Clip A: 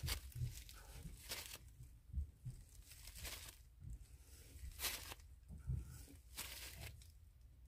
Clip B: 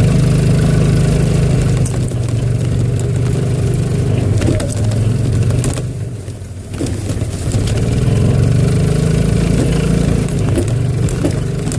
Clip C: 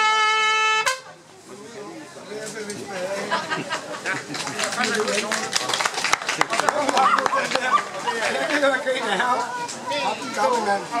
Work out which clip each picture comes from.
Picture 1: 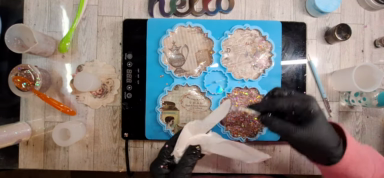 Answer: A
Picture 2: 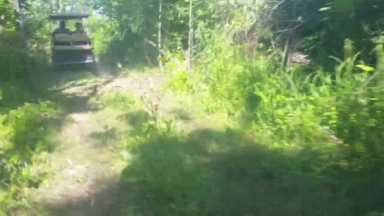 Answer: B